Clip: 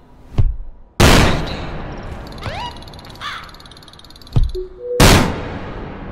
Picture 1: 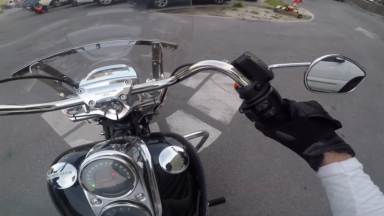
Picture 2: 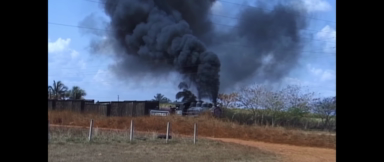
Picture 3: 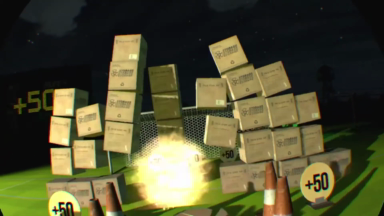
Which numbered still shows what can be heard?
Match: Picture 3